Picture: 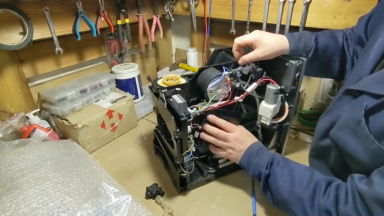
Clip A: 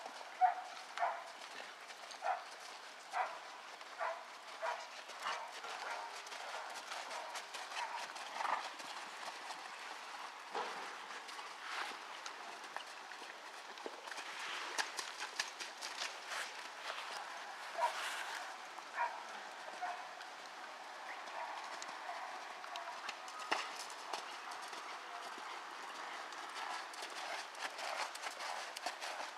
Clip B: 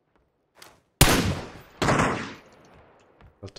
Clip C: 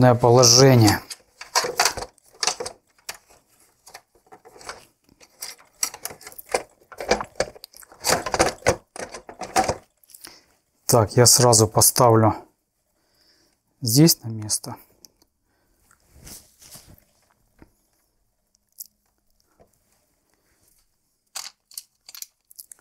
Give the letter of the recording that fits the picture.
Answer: C